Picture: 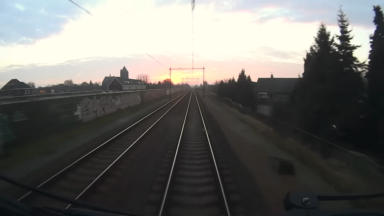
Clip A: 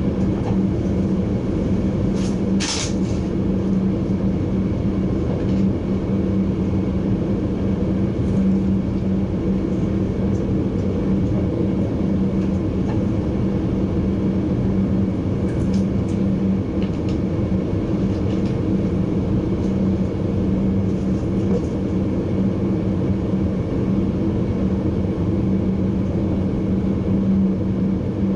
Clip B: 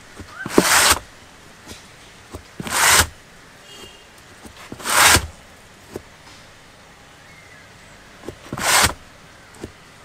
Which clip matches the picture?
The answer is A